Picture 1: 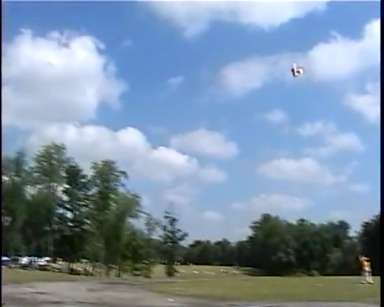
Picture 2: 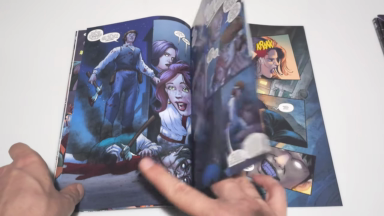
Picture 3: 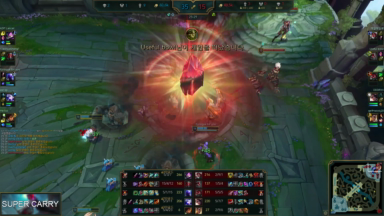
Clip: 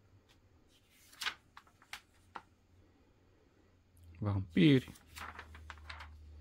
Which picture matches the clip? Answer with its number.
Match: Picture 2